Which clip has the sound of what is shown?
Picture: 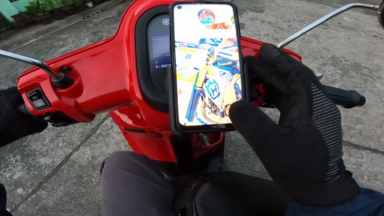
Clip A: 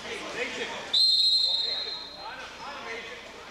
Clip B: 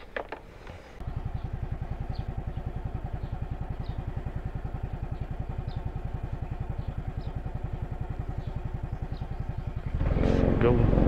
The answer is B